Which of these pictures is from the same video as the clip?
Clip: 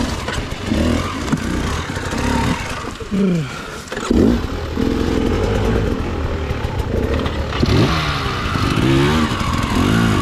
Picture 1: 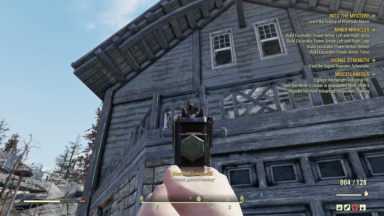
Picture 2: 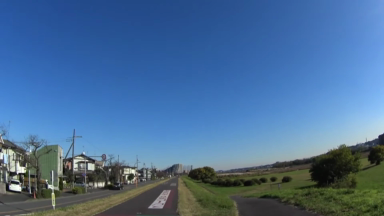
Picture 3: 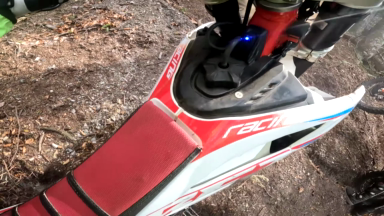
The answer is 3